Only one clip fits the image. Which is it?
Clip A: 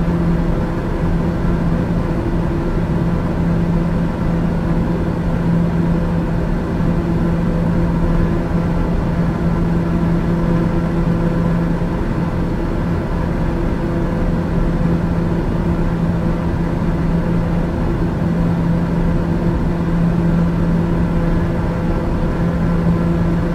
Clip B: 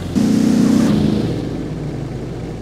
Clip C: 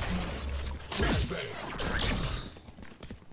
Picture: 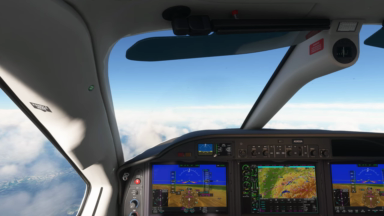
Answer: A